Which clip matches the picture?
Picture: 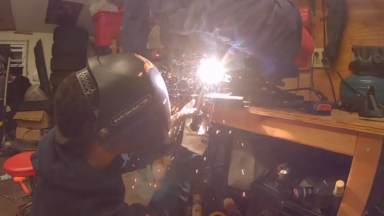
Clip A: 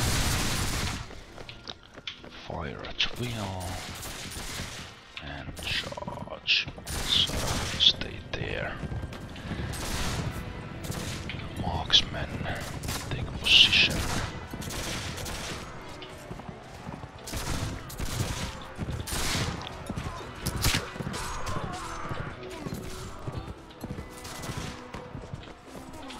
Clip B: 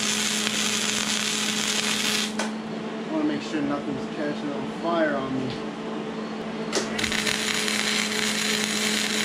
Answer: B